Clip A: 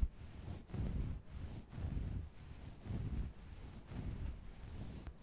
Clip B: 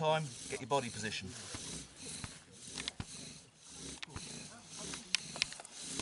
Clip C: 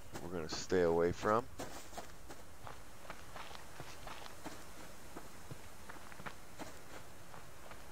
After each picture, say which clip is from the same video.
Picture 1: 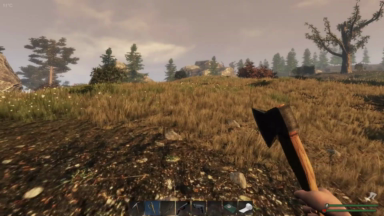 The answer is C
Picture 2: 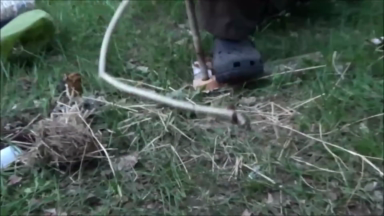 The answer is B